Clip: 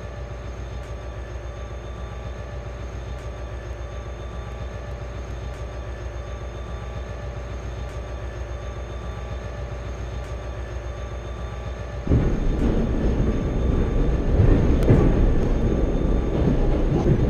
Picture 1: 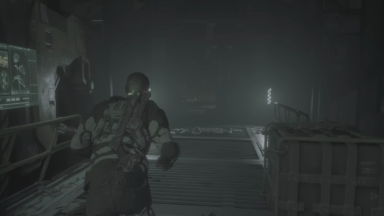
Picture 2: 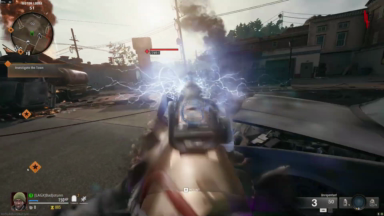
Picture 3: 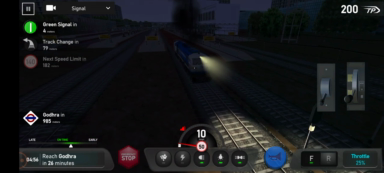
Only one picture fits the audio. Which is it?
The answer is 3